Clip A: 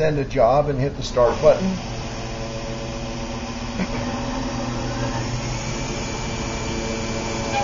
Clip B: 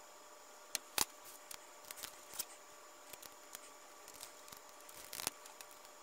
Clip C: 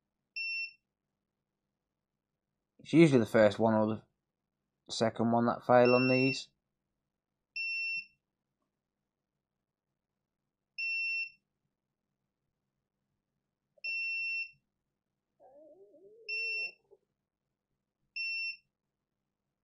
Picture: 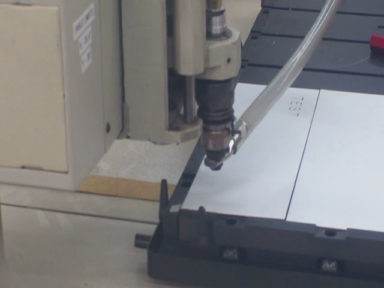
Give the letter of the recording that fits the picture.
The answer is A